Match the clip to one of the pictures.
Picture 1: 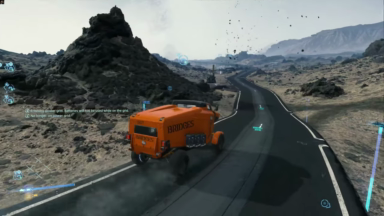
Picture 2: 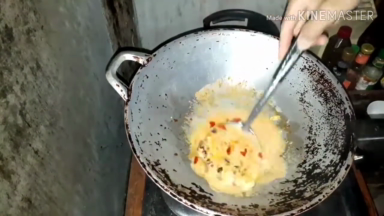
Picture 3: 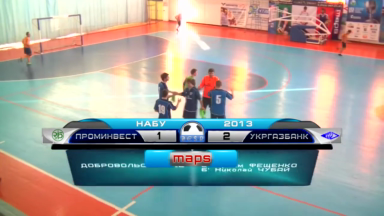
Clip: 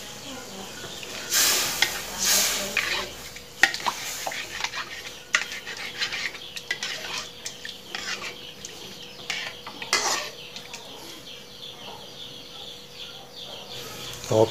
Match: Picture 2